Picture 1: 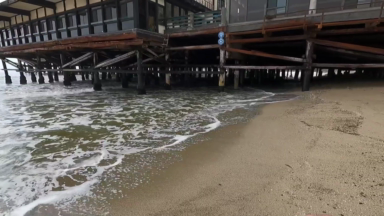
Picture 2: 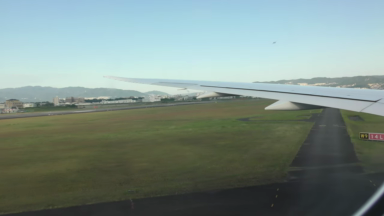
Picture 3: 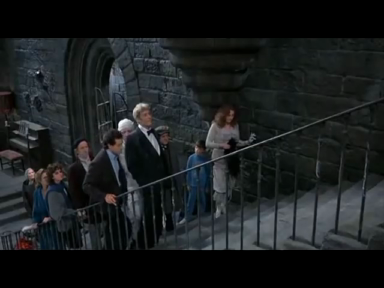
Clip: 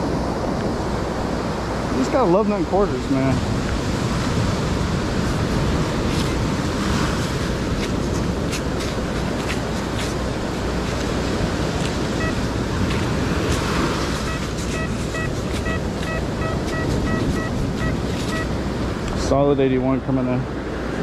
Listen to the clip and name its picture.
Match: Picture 1